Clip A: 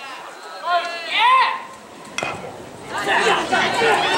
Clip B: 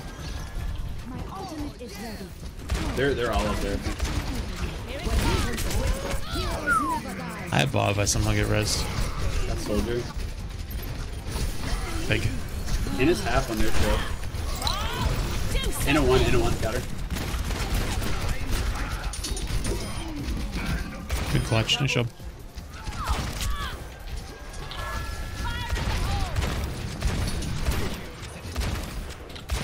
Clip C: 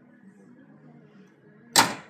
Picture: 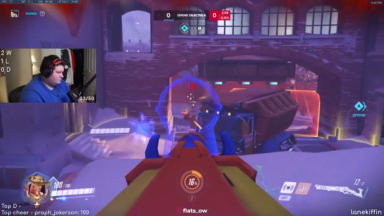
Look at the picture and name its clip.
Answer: B